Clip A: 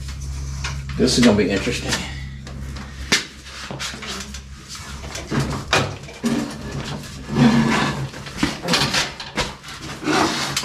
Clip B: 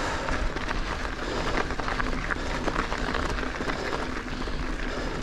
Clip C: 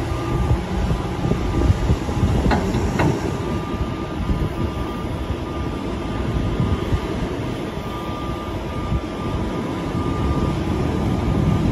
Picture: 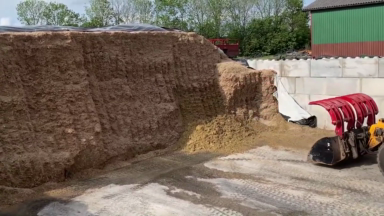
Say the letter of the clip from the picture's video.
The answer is C